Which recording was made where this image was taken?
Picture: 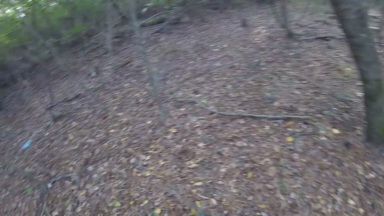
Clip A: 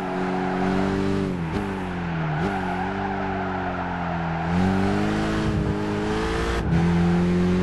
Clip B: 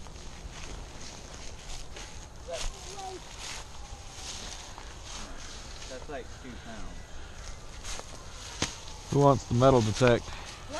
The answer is B